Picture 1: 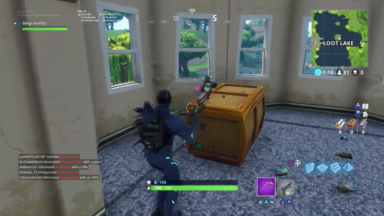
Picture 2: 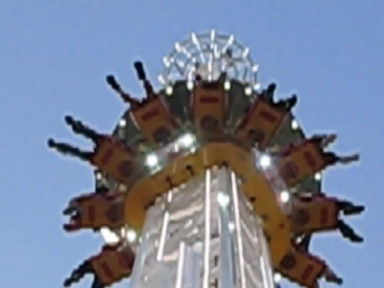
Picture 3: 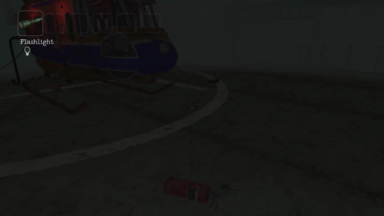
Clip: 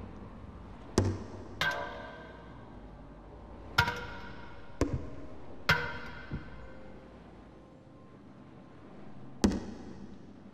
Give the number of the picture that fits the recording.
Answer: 3